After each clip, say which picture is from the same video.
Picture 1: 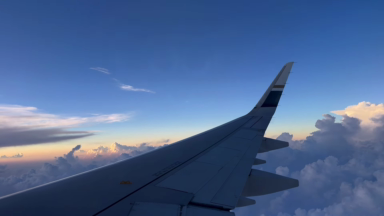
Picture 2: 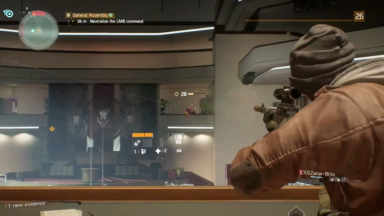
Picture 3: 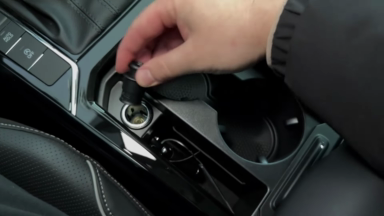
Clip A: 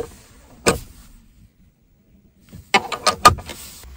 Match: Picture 3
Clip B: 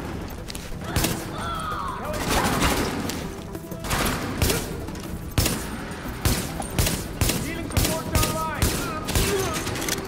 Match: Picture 2